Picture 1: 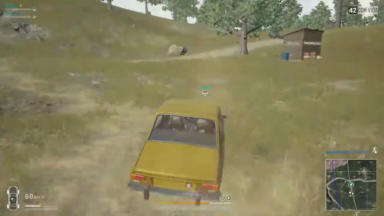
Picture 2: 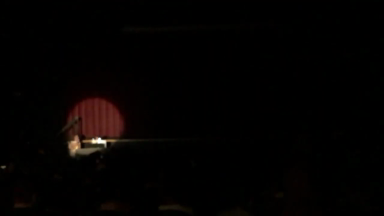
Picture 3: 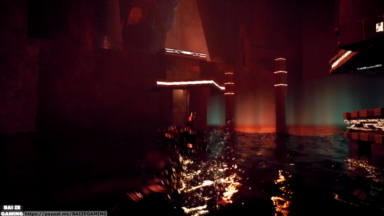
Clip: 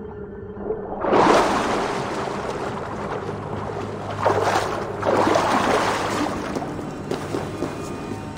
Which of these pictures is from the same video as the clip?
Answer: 3